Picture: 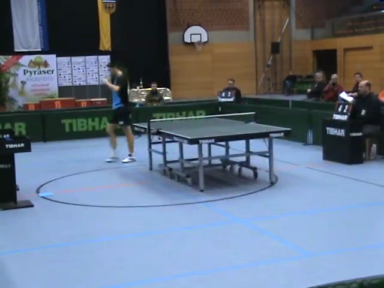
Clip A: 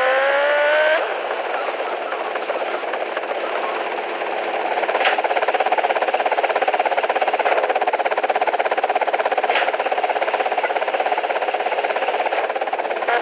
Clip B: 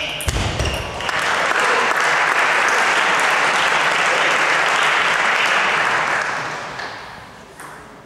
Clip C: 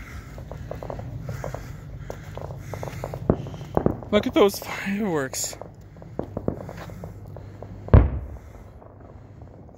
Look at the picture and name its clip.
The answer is B